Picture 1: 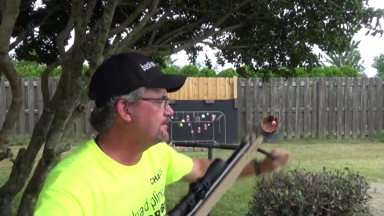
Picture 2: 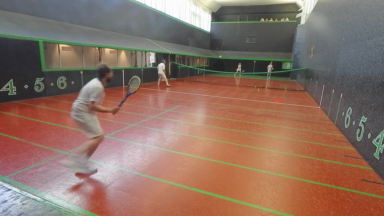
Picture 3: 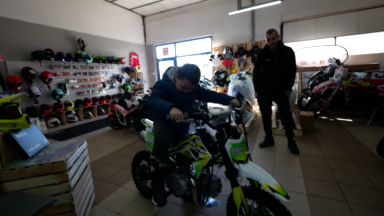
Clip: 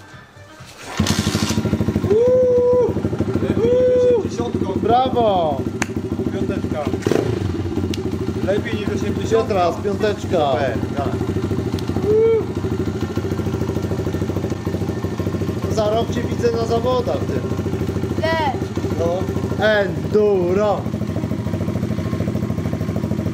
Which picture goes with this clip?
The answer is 3